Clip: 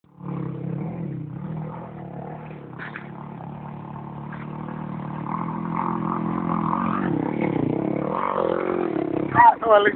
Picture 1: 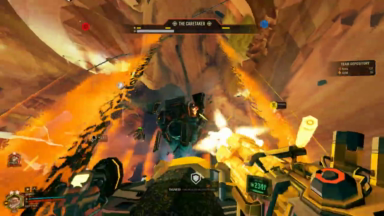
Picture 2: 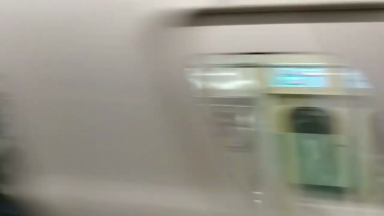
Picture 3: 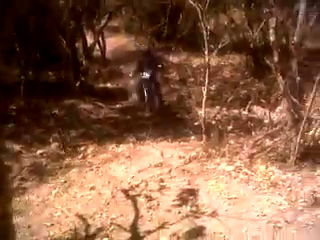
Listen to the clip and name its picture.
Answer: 3